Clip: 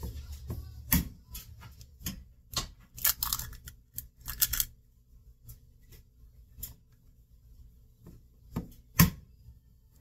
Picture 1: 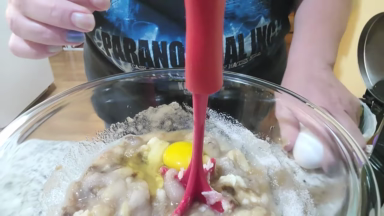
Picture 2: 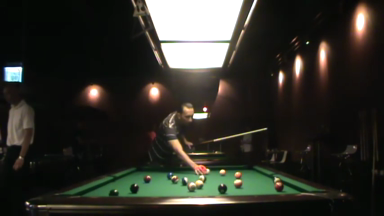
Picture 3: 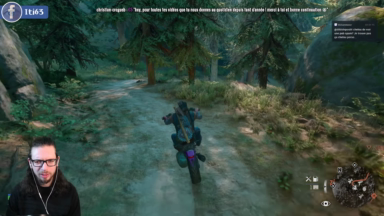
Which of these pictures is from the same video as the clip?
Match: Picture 1